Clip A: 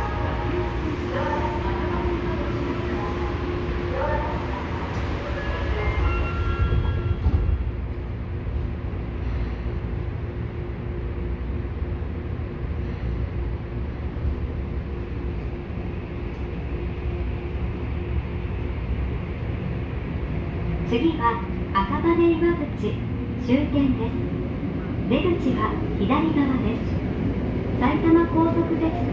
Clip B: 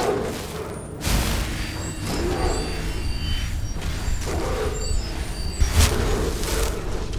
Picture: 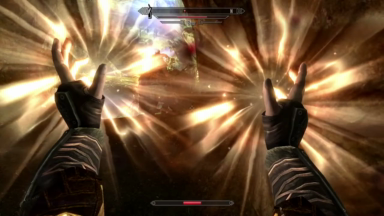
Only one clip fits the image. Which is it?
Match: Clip B